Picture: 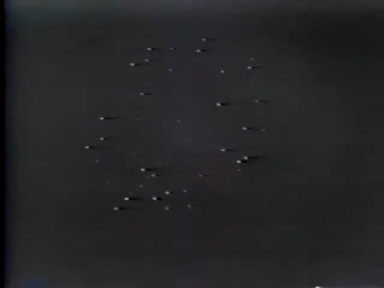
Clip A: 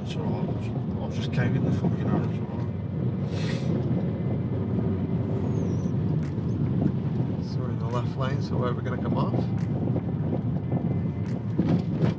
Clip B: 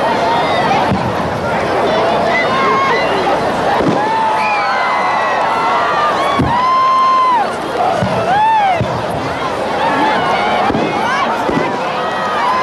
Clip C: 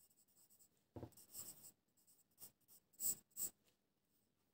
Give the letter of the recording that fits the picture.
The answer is B